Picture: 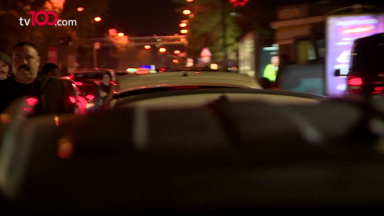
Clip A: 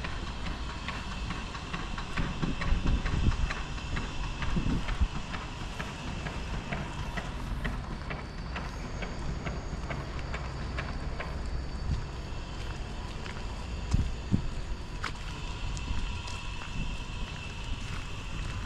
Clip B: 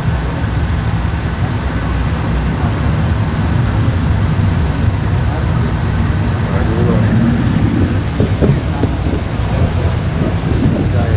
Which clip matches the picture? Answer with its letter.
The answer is B